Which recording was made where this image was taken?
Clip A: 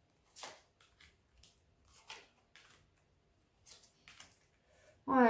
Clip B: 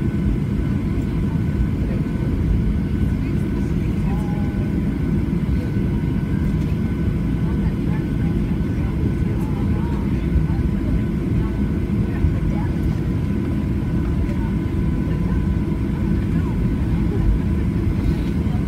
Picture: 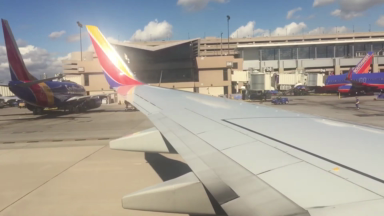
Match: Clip B